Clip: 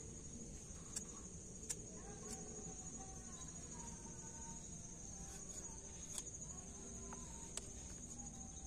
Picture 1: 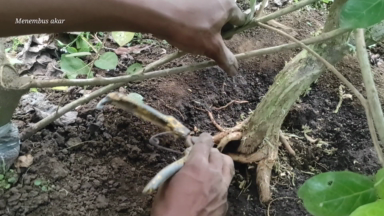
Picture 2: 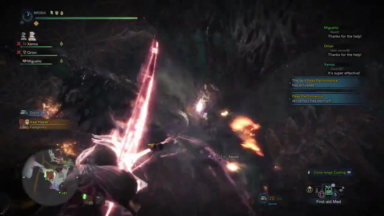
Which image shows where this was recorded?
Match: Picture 1